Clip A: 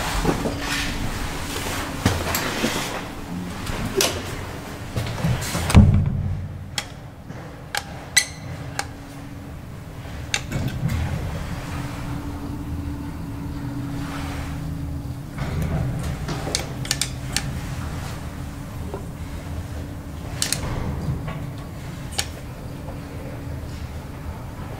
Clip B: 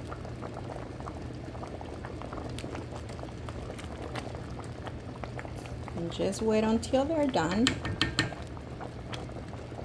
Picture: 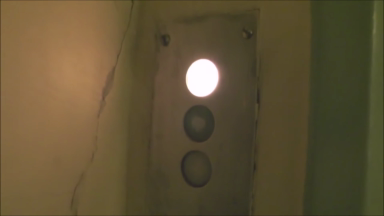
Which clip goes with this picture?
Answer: A